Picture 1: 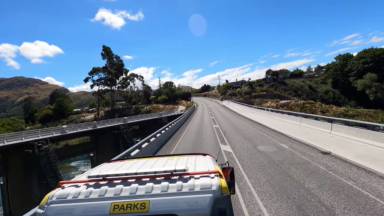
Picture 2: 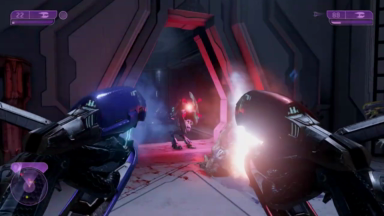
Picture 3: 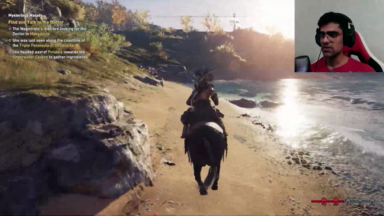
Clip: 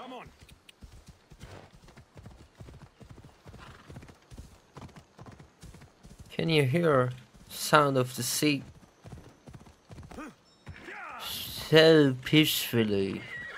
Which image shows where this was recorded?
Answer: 3